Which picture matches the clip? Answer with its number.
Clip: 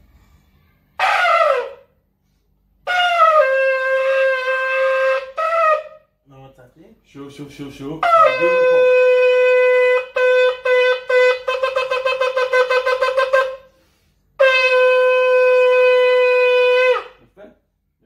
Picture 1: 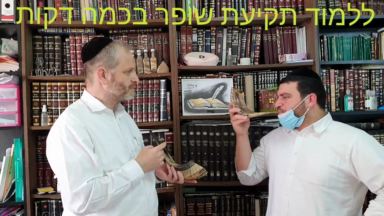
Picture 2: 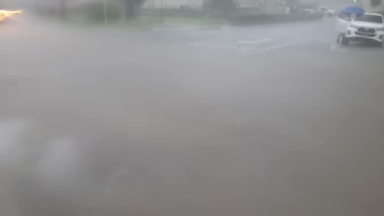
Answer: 1